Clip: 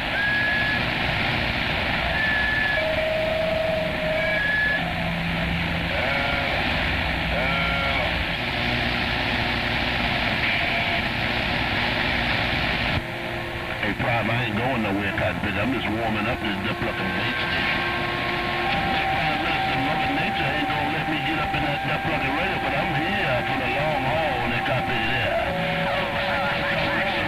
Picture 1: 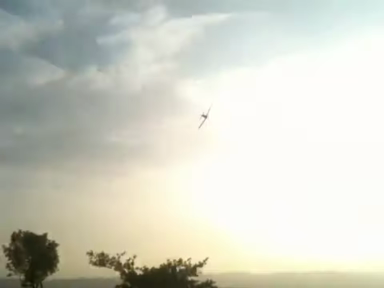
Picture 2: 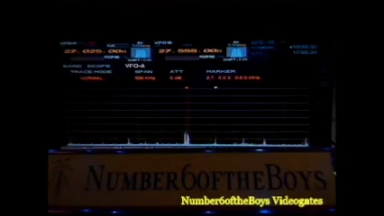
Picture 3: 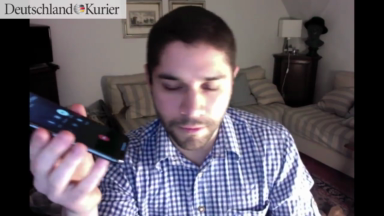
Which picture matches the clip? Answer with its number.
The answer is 2